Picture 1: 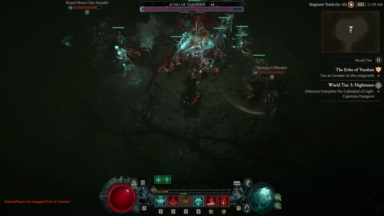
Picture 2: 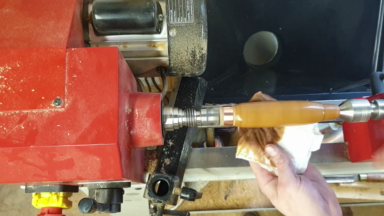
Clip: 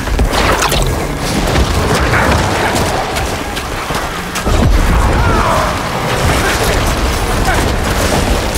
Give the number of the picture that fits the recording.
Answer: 1